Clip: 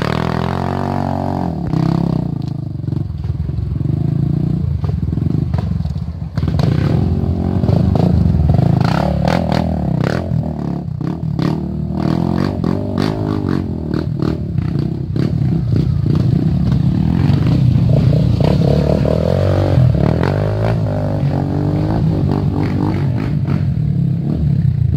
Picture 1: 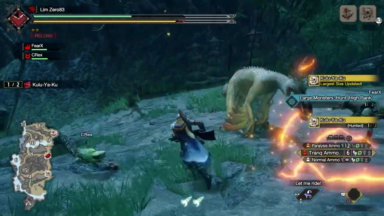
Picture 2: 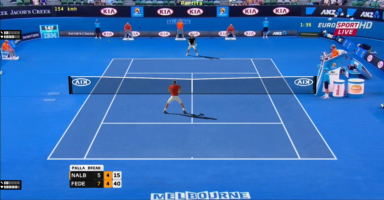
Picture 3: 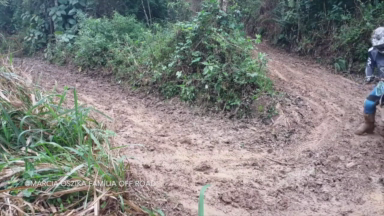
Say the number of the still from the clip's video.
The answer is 3